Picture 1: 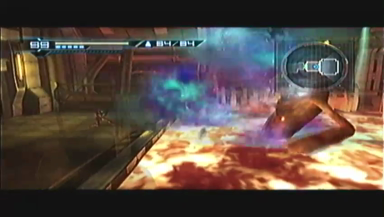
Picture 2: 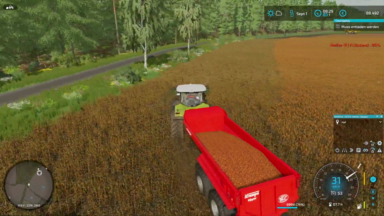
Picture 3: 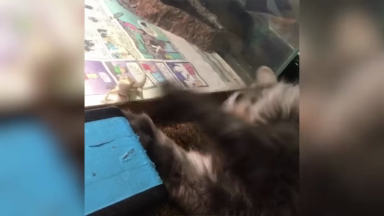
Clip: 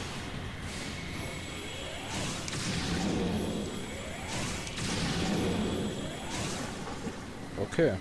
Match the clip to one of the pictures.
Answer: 1